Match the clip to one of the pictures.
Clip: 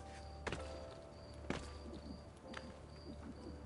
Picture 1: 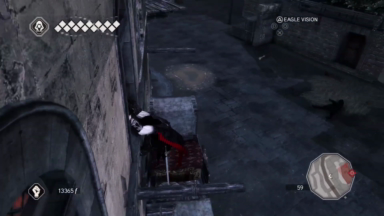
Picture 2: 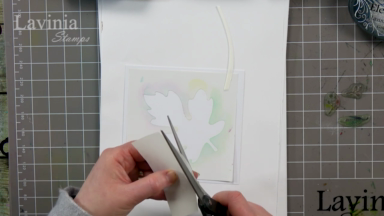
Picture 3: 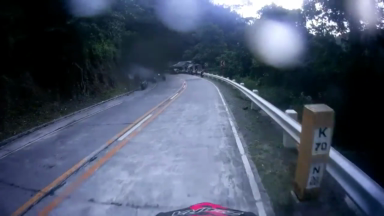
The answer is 1